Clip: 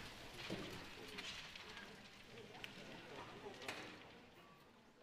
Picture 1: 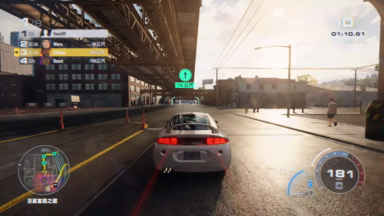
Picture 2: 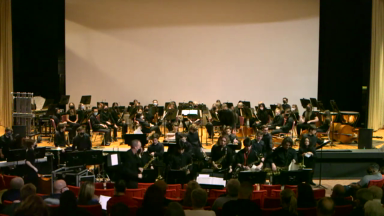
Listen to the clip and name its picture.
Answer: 2